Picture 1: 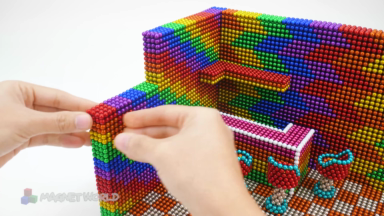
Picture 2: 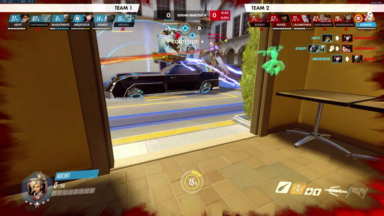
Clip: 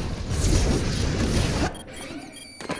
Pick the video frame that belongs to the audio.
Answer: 2